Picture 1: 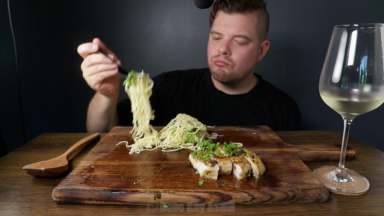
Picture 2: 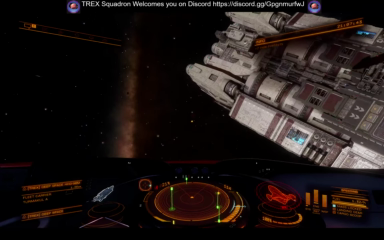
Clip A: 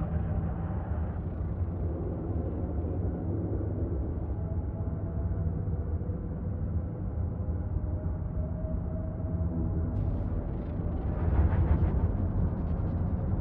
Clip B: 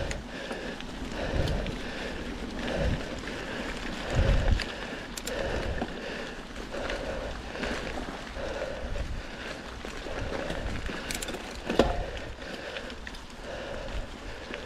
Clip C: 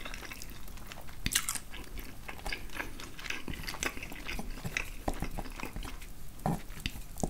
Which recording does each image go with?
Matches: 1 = C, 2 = A